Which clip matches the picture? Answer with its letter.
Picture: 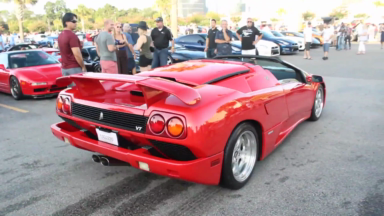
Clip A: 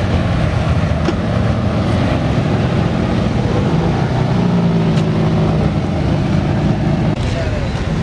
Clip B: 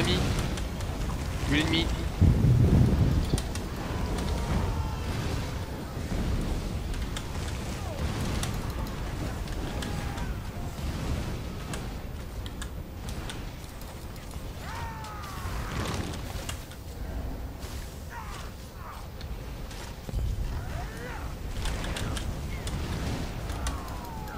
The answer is A